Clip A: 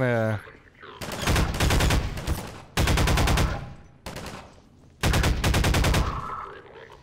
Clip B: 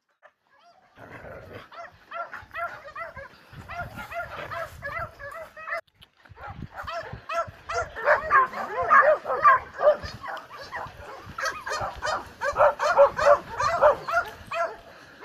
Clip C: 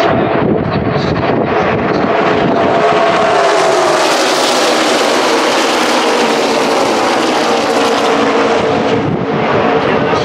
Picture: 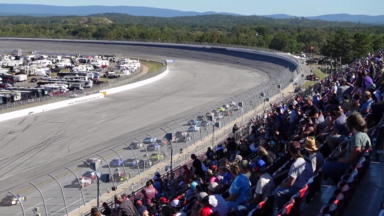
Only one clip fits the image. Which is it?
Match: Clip C